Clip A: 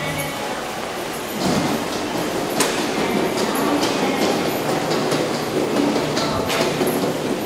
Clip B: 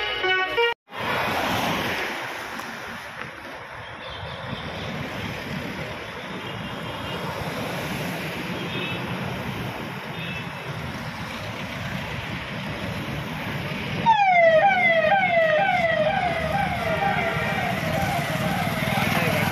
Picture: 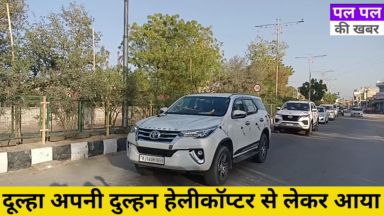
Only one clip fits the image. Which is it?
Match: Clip B